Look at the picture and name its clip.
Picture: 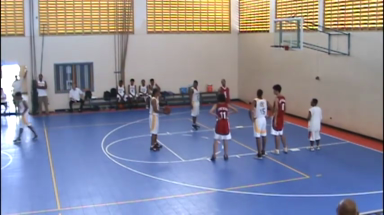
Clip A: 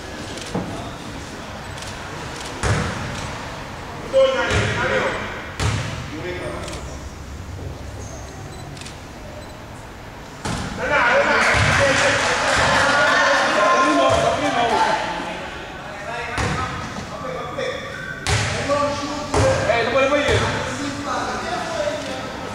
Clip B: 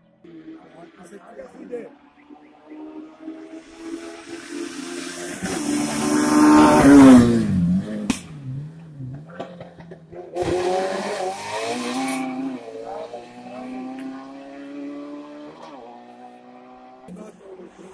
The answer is A